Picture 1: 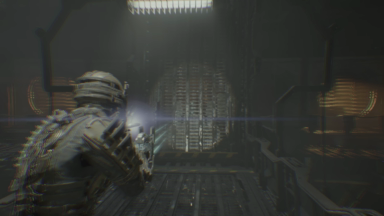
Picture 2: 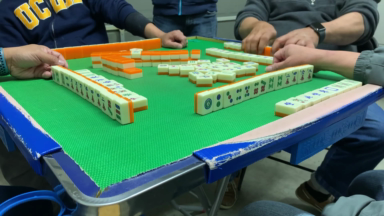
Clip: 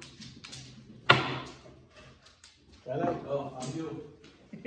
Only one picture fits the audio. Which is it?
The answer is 2